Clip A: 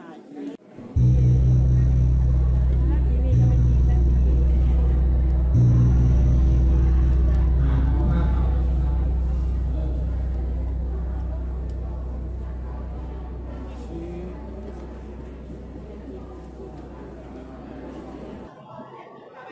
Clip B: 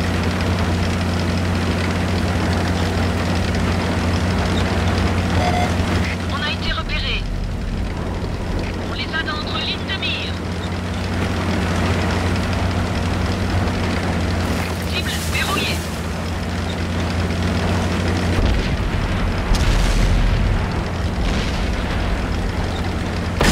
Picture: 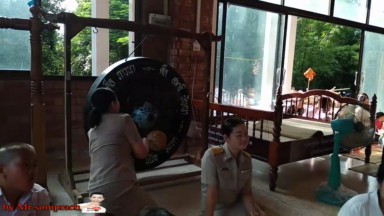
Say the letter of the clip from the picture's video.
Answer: A